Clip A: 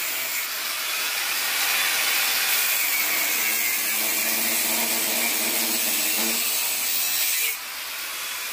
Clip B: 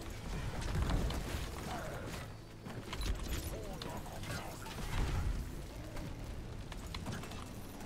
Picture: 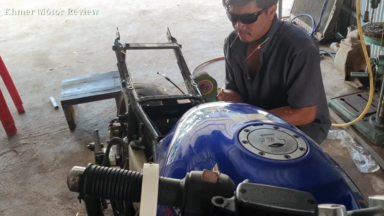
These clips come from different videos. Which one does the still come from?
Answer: A